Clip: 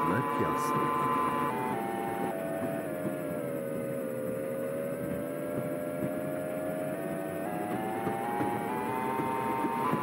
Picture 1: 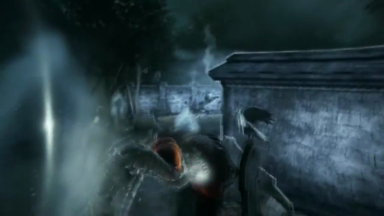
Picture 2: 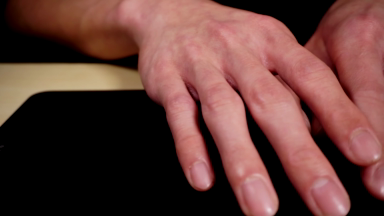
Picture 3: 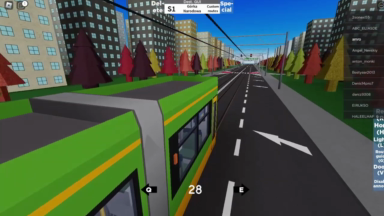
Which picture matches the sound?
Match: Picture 3